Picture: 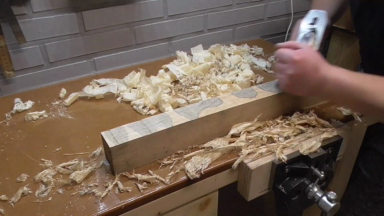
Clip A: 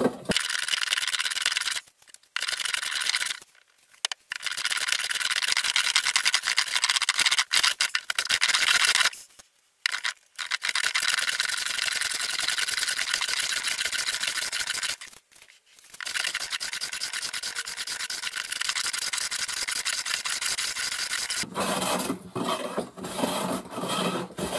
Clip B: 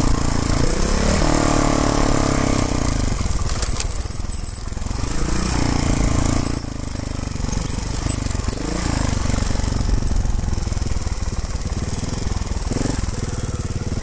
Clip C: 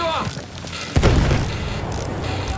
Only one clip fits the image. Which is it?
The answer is A